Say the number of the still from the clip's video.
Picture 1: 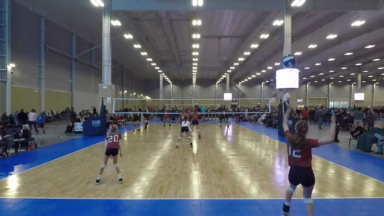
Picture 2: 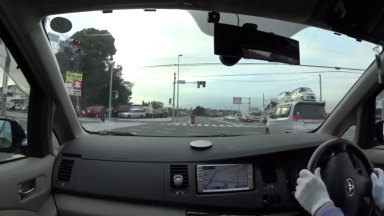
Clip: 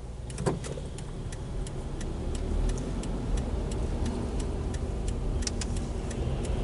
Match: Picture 2